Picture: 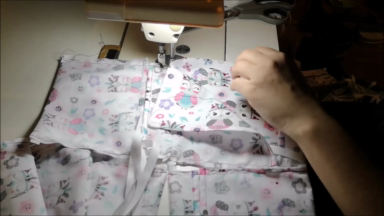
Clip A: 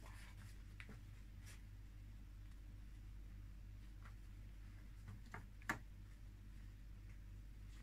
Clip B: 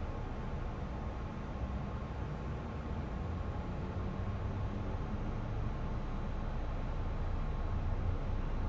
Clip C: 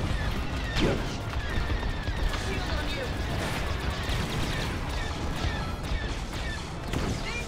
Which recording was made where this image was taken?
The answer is A